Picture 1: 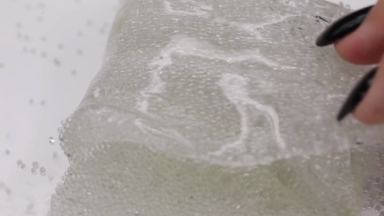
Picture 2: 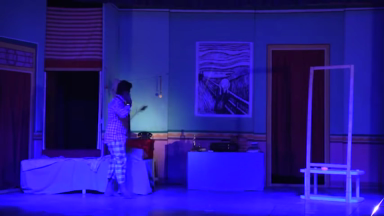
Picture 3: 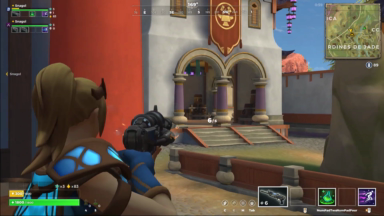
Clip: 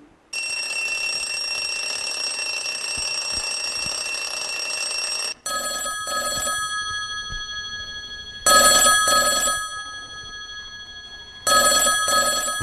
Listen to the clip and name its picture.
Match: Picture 2